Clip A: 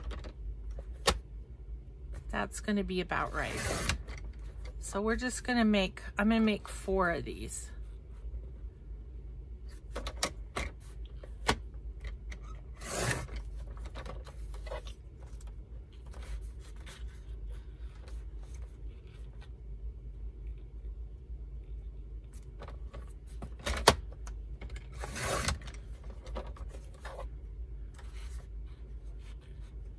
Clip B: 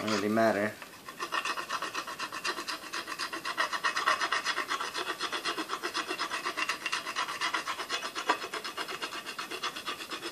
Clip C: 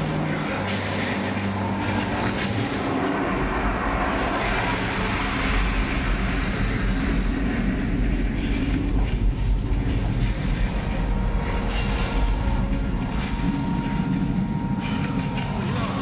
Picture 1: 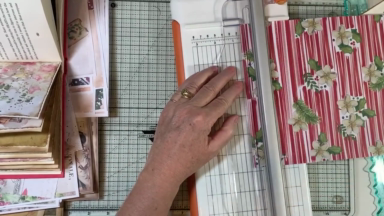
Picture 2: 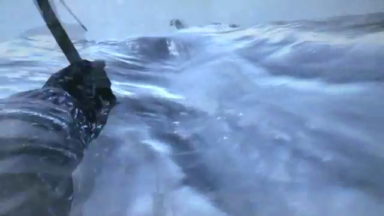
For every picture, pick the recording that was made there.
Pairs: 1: A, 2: C